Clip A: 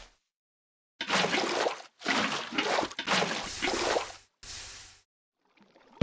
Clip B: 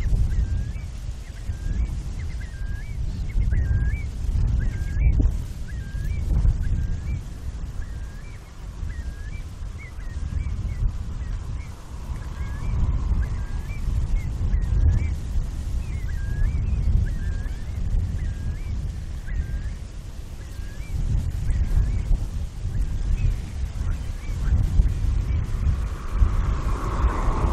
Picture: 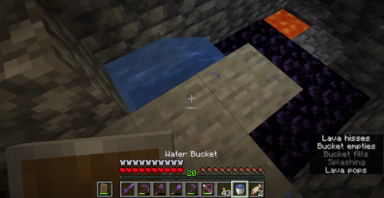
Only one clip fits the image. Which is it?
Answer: A